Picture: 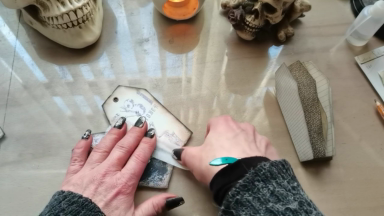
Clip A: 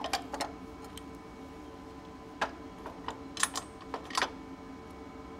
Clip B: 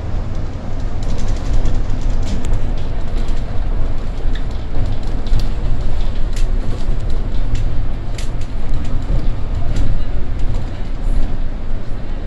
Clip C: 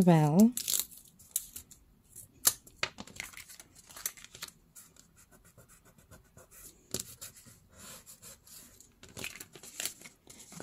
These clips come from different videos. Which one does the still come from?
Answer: C